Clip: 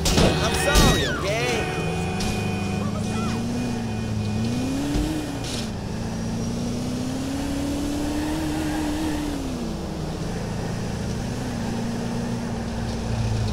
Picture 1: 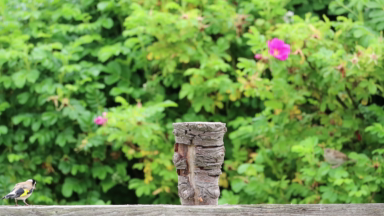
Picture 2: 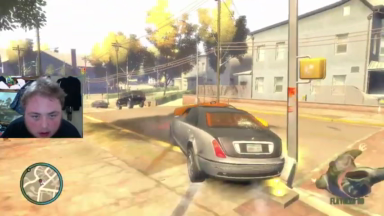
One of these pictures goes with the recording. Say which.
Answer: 2